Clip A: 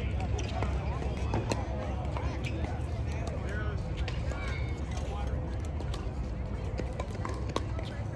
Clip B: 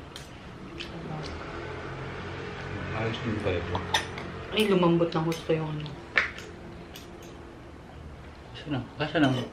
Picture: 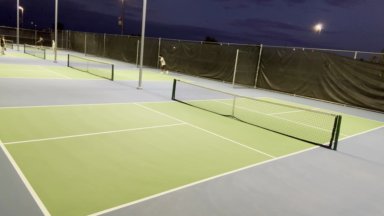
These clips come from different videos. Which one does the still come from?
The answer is A